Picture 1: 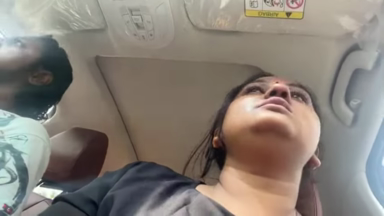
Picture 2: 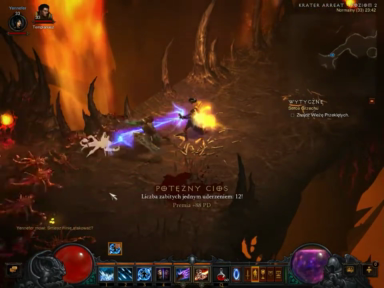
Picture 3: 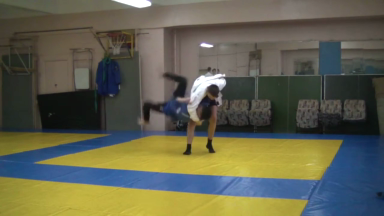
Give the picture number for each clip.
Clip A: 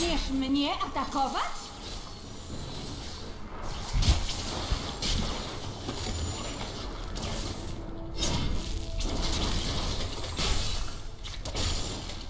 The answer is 2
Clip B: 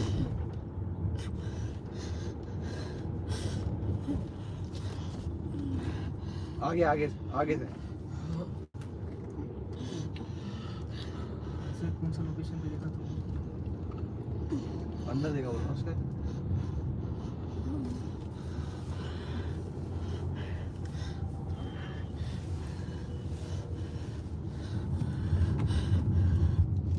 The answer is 1